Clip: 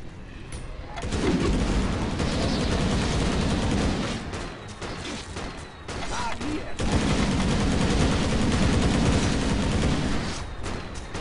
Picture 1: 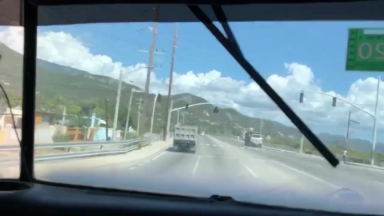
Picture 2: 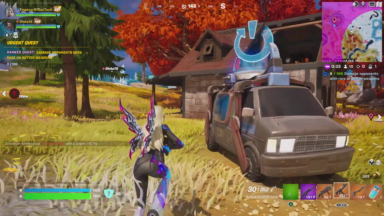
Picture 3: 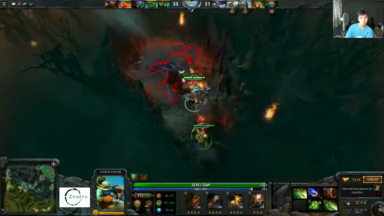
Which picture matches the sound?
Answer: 3